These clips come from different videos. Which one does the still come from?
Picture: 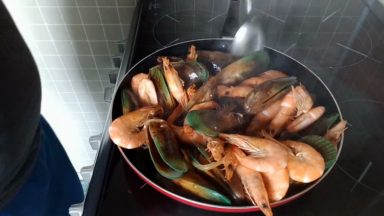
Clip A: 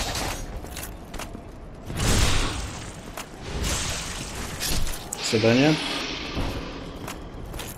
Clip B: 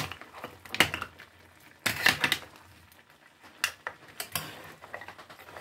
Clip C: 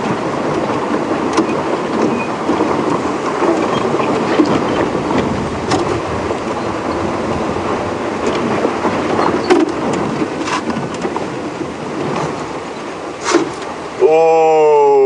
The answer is B